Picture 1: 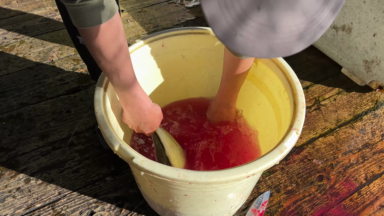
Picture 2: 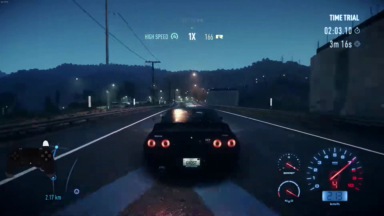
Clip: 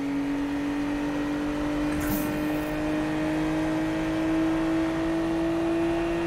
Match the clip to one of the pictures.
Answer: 2